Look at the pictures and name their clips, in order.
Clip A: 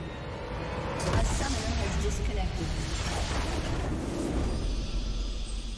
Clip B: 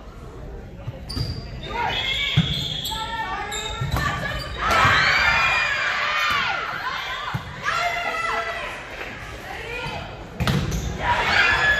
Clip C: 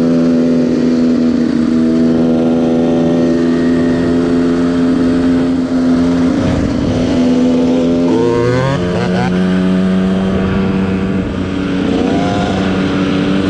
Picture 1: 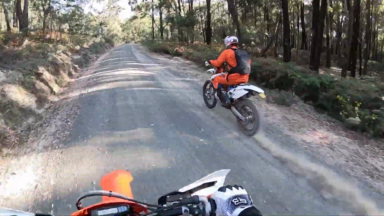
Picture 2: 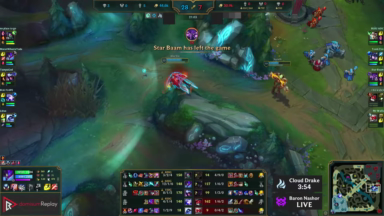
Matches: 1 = C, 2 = A